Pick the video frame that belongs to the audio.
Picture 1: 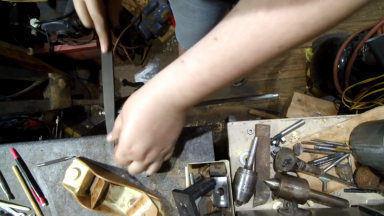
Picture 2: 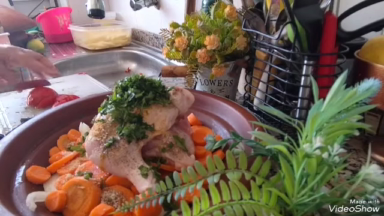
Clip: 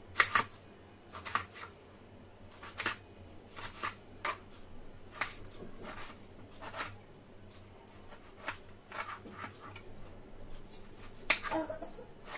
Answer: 2